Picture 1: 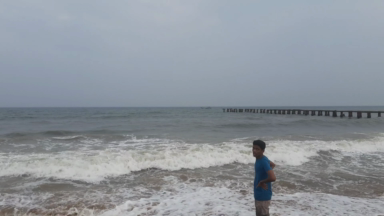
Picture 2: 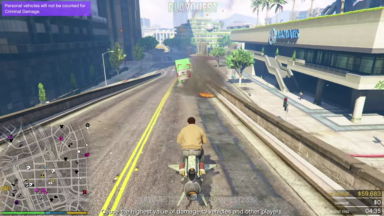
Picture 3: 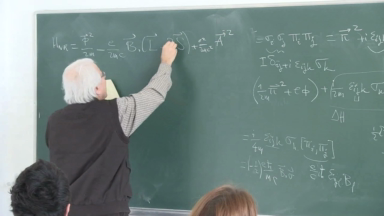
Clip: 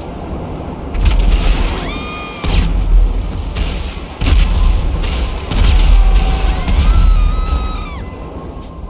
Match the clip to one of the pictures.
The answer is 2